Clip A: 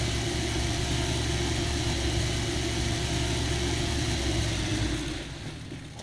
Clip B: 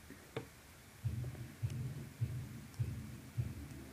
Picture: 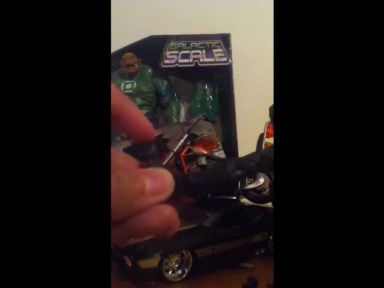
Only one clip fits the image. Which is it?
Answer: B